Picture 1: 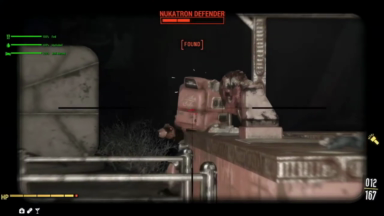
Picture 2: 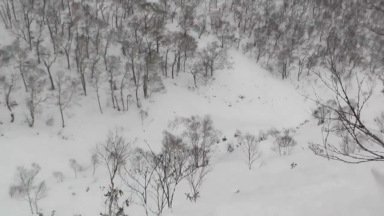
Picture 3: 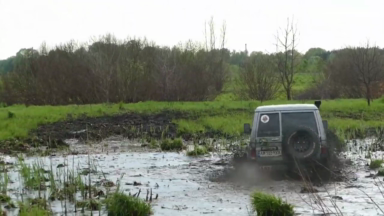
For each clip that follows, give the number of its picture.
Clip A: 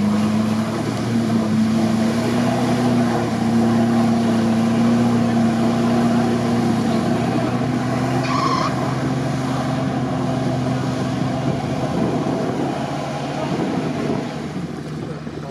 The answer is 3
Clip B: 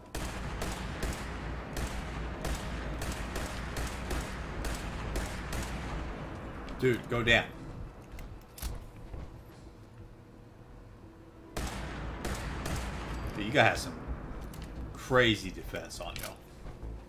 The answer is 1